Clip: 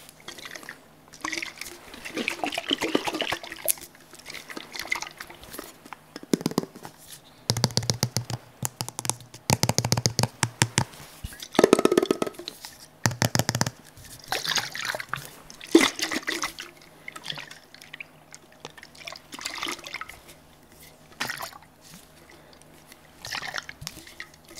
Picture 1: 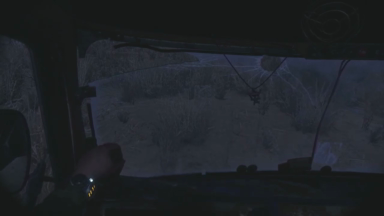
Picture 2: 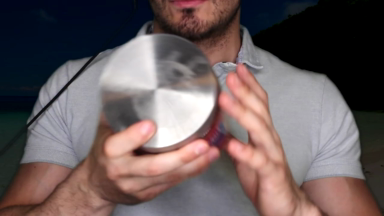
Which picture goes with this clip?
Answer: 2